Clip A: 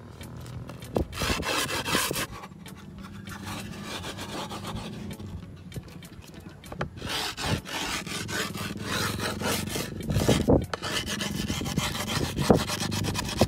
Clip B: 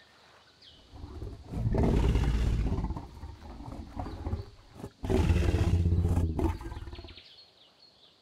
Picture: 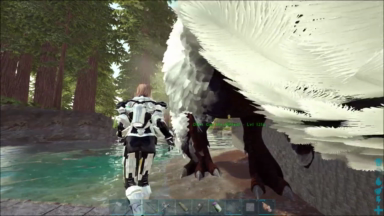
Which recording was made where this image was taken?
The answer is B